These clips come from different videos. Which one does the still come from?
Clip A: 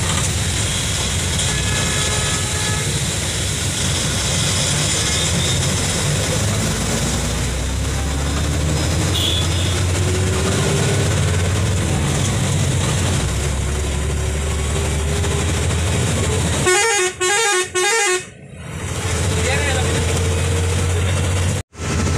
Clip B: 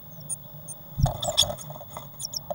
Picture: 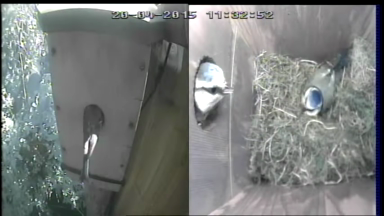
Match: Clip B